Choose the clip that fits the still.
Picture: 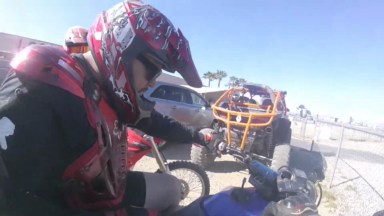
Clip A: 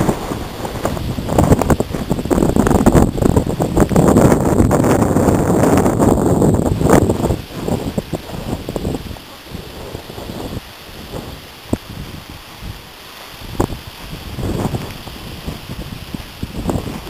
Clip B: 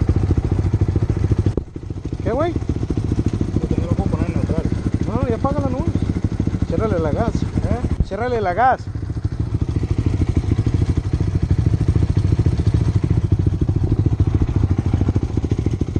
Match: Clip B